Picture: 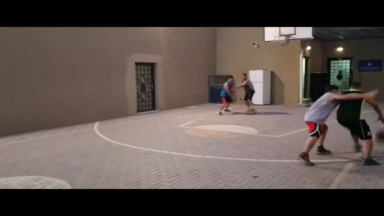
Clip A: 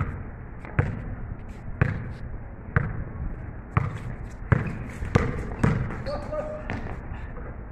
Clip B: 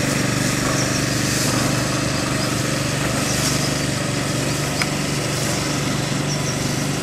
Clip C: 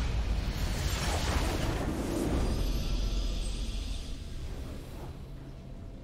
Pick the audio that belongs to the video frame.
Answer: A